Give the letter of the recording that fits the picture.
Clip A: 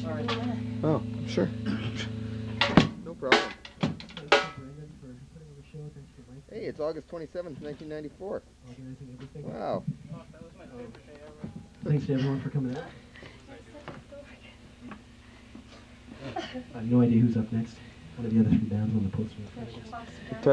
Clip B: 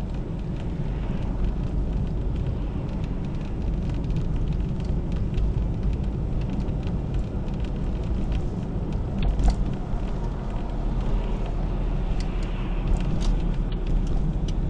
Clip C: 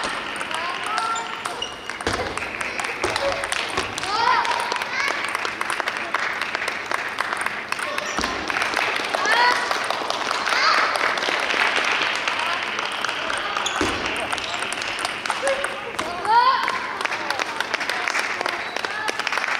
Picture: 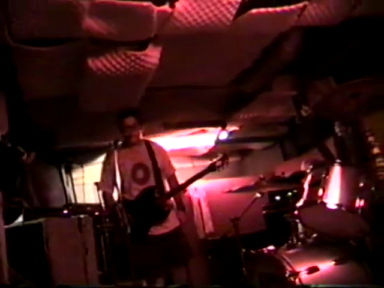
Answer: A